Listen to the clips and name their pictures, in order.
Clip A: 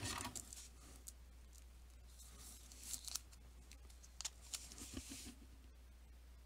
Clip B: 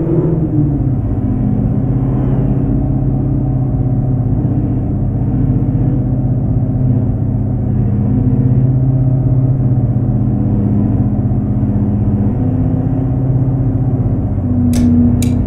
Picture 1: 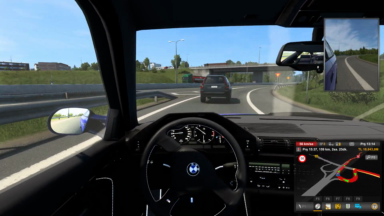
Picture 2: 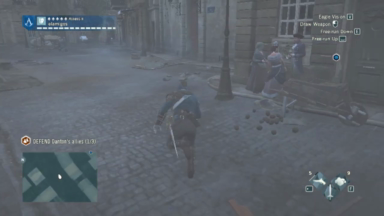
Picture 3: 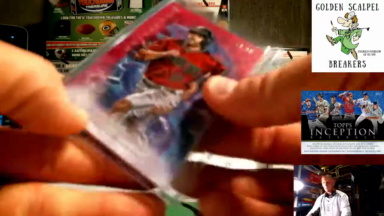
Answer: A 3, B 1